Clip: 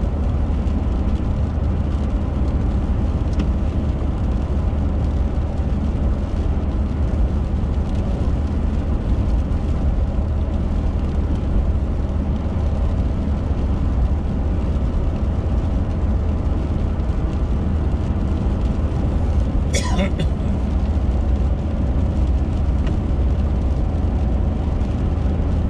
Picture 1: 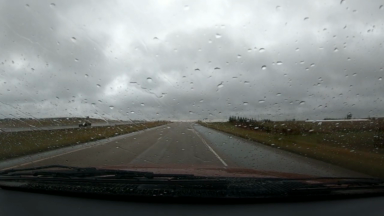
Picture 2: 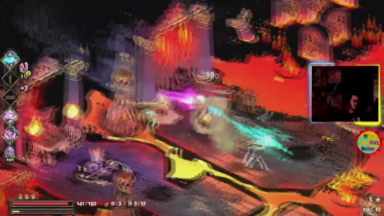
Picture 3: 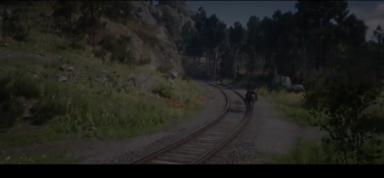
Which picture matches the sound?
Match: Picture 1